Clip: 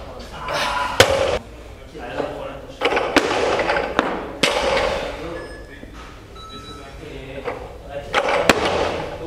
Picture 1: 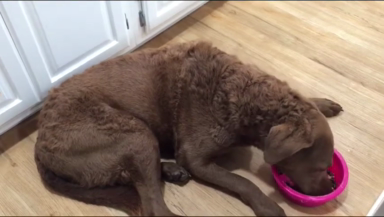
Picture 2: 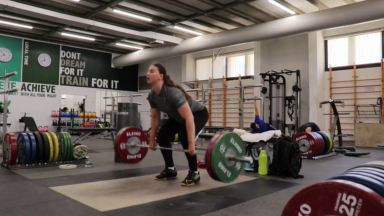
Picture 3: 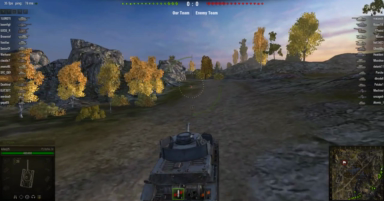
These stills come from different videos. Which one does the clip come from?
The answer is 2